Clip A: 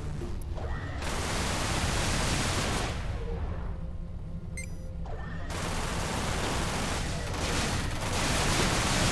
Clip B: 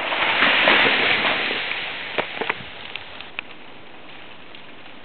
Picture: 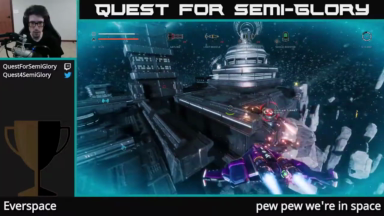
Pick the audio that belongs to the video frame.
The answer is A